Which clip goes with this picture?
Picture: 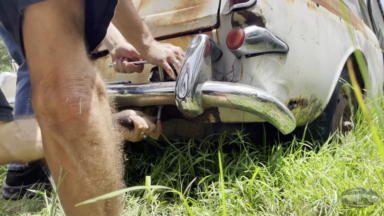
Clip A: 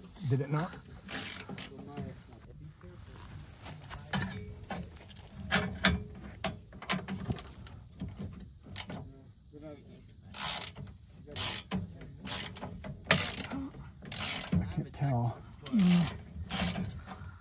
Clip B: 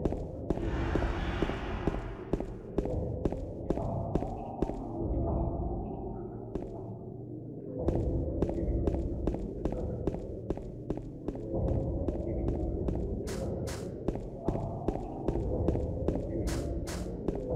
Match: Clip A